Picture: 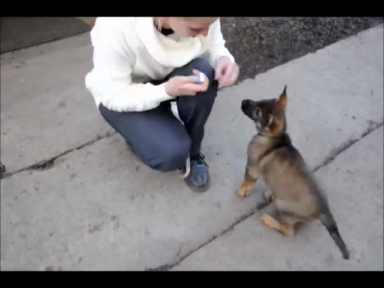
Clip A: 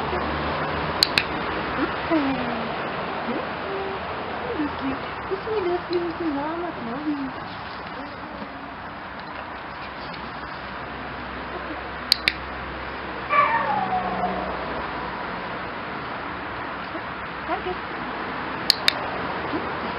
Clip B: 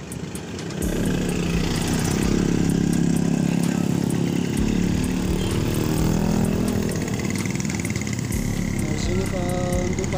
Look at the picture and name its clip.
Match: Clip A